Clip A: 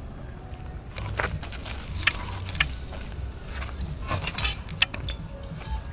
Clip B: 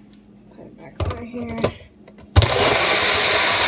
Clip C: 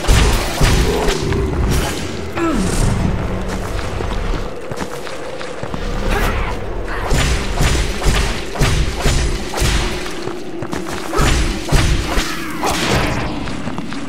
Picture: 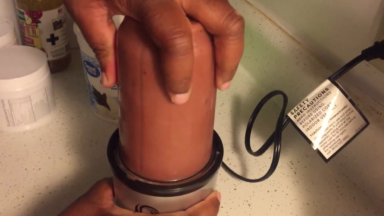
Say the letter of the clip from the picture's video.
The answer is B